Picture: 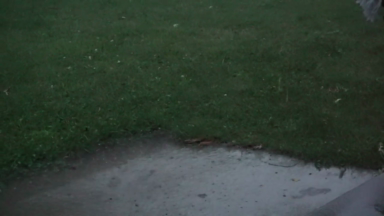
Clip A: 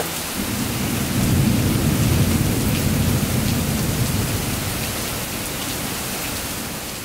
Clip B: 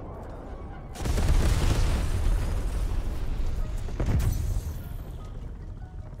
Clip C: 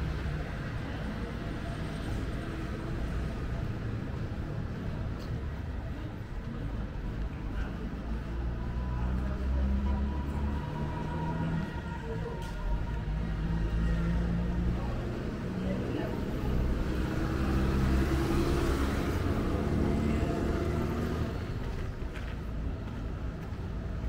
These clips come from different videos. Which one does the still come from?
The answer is A